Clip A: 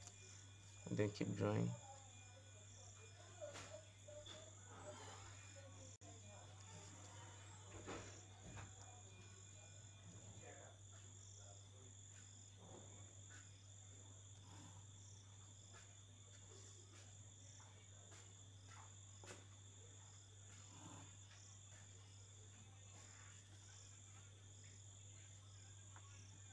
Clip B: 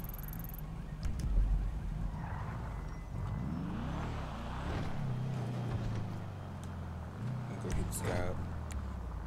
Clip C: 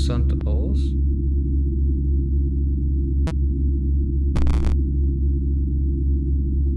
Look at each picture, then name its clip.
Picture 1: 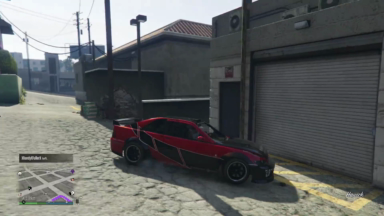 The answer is B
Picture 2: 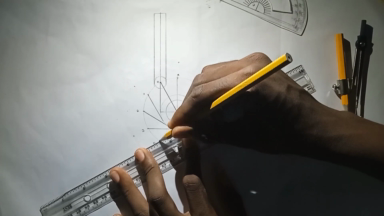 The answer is A